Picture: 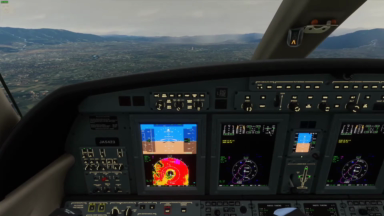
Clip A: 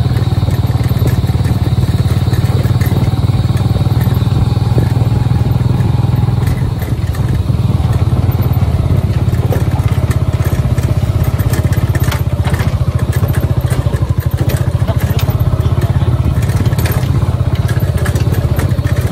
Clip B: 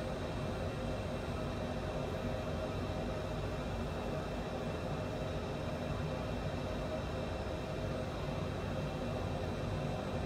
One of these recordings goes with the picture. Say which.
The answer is B